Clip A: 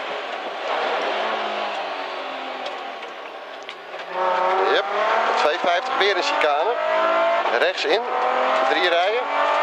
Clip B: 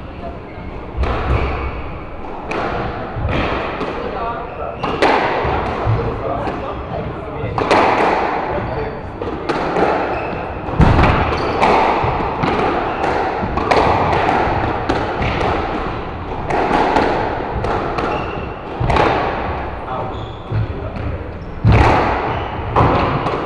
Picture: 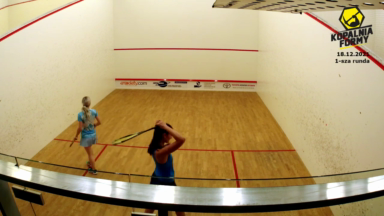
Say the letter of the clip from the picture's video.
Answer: B